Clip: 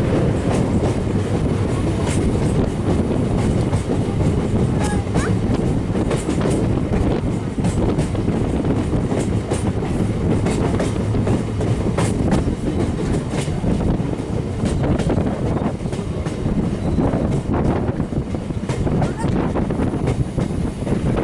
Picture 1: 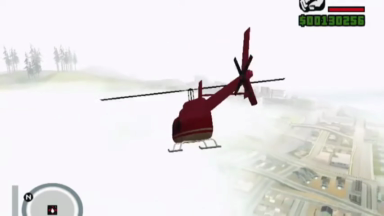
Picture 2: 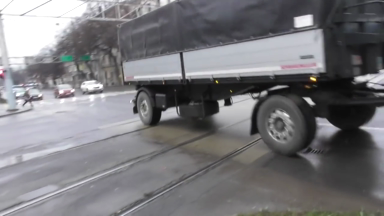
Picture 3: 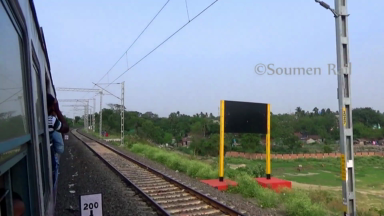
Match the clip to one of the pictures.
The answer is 3